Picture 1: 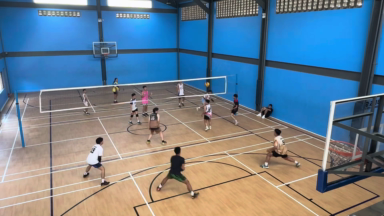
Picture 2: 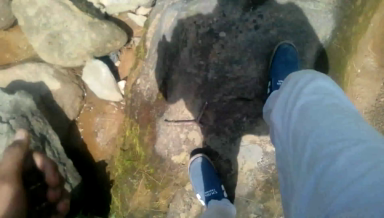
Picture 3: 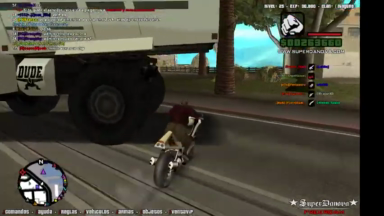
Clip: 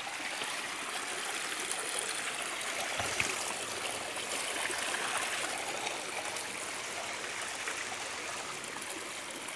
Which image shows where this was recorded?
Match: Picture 2